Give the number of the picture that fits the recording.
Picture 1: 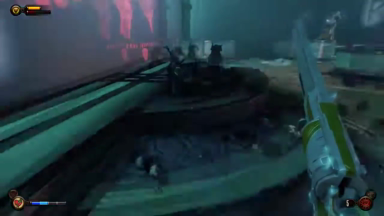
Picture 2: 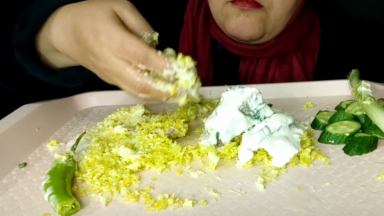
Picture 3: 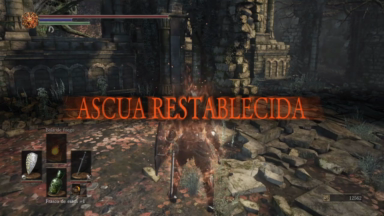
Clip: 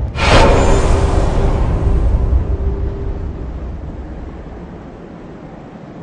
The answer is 3